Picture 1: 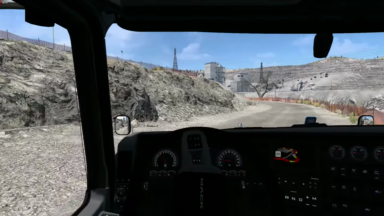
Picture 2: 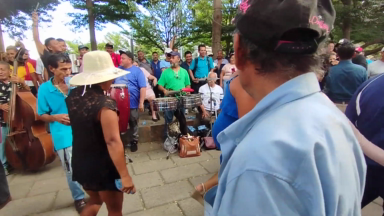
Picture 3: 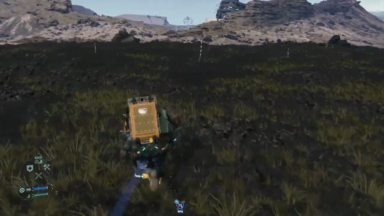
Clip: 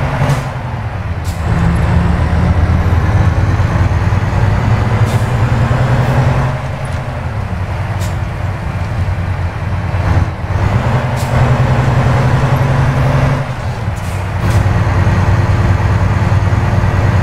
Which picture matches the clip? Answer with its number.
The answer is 1